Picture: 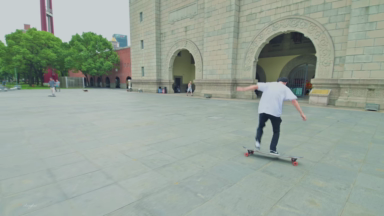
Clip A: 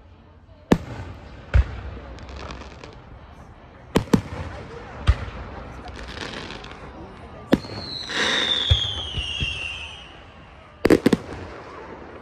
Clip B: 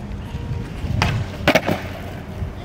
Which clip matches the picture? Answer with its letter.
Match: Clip B